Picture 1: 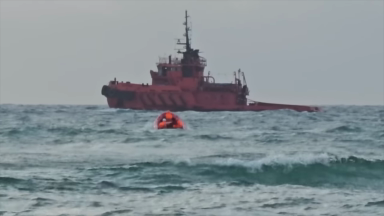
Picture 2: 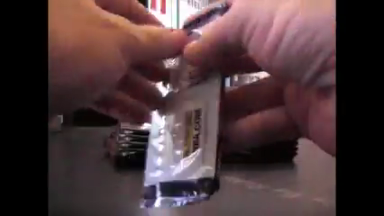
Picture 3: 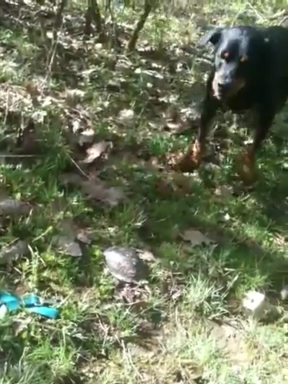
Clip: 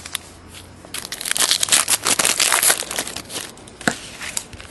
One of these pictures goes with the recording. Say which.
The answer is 2